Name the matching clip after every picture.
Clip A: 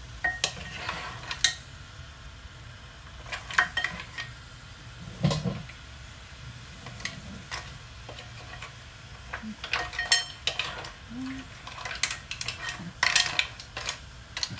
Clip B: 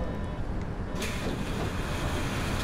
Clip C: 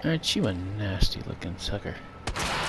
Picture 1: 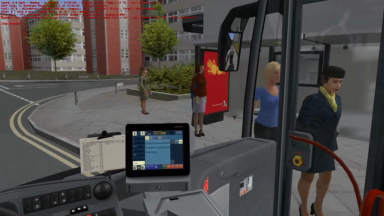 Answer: B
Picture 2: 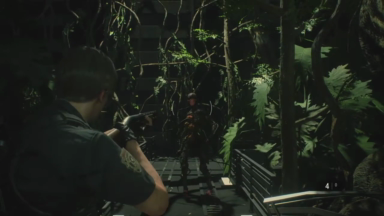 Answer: C